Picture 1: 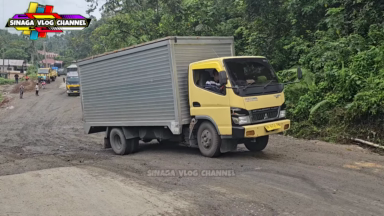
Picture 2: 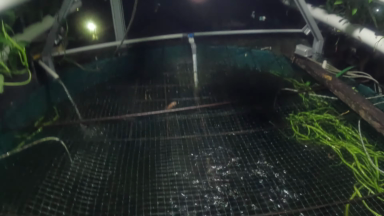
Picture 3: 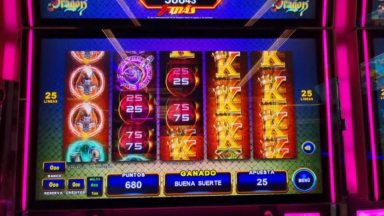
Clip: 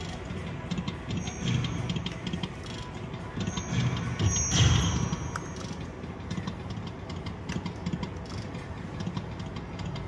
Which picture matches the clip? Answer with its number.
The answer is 3